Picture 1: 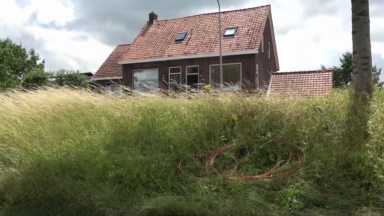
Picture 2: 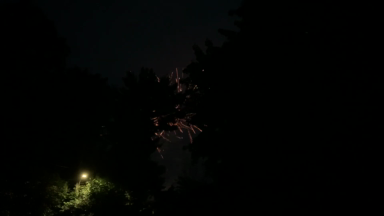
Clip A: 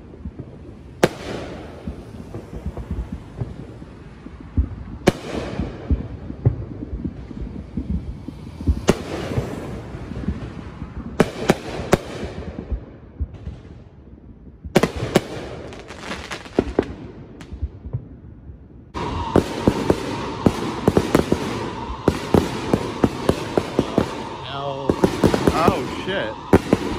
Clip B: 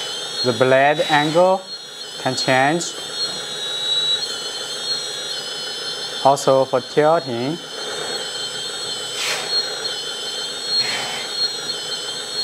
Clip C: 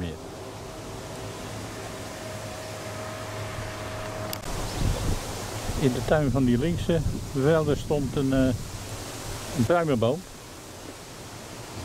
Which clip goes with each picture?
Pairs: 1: C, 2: A